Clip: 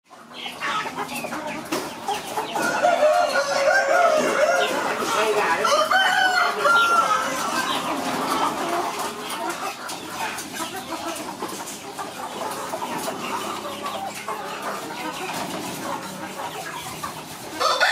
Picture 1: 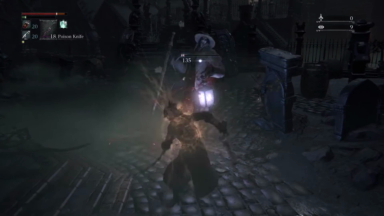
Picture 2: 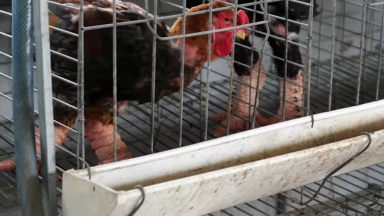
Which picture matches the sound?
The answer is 2